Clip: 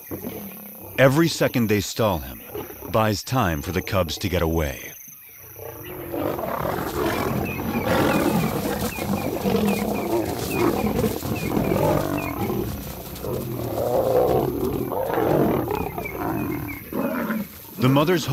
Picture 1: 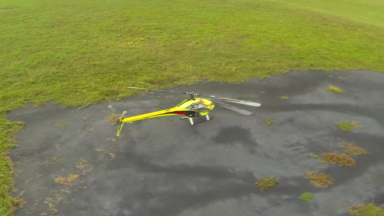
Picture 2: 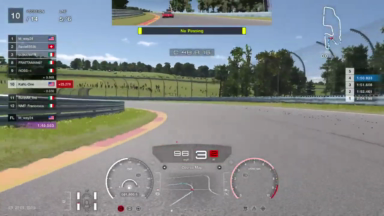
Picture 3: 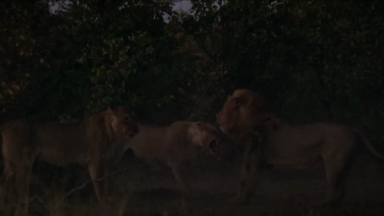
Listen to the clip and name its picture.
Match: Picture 3